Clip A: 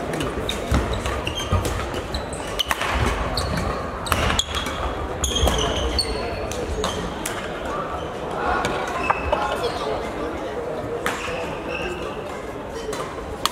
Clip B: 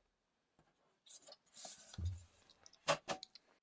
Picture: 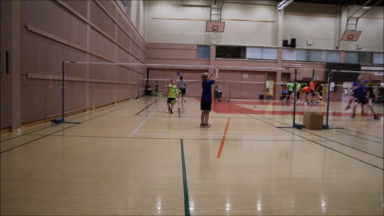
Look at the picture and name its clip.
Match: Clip A